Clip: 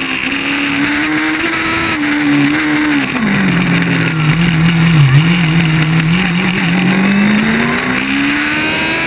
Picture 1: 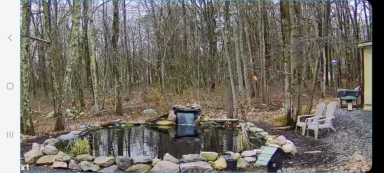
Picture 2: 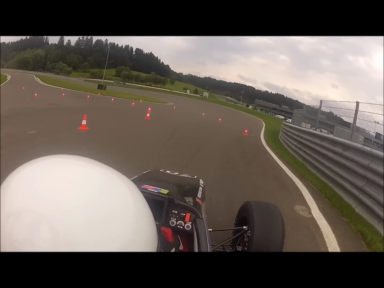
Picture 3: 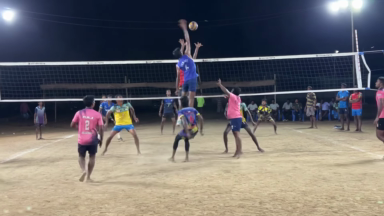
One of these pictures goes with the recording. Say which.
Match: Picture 2